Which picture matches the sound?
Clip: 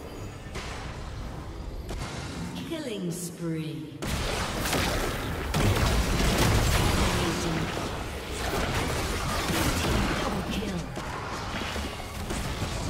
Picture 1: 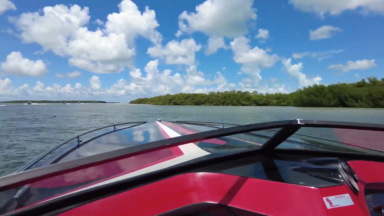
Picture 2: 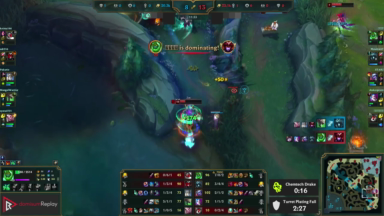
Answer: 2